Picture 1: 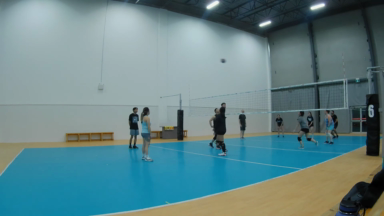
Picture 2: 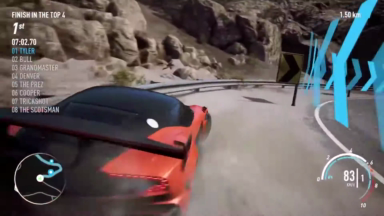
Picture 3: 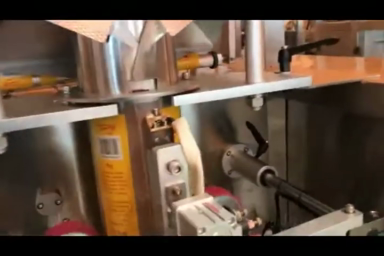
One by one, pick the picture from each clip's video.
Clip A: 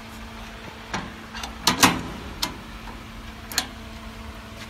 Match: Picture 3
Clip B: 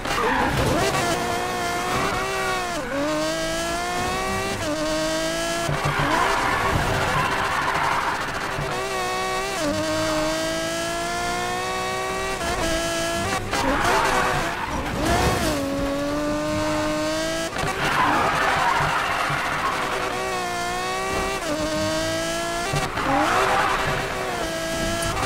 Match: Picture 2